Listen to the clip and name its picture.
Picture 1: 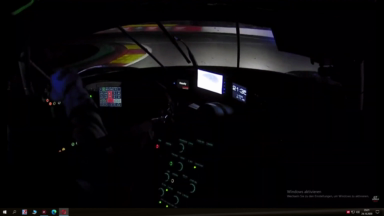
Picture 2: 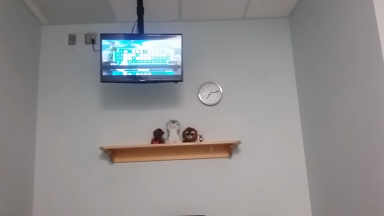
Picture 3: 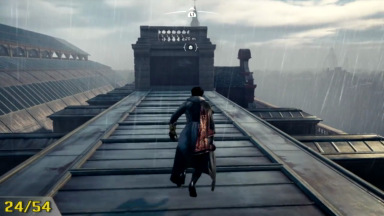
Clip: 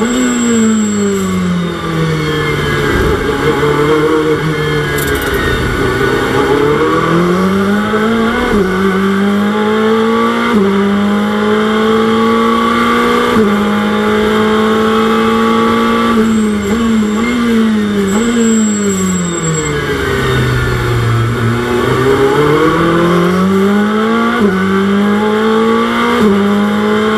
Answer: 1